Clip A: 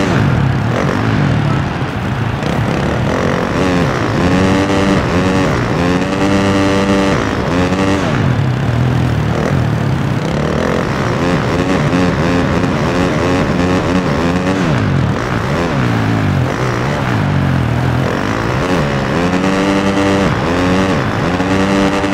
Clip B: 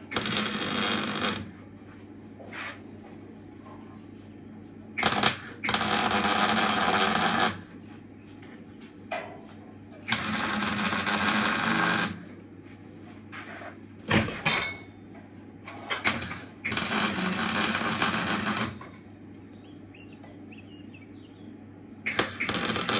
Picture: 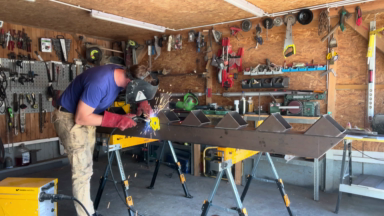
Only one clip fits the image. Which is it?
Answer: B